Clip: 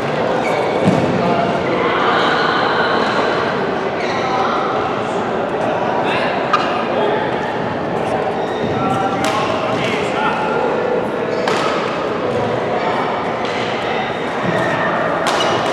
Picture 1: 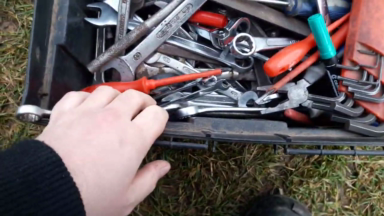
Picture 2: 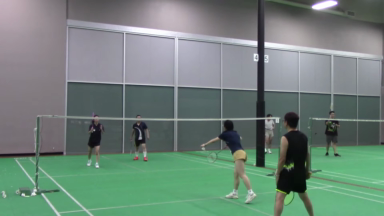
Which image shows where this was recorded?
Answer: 2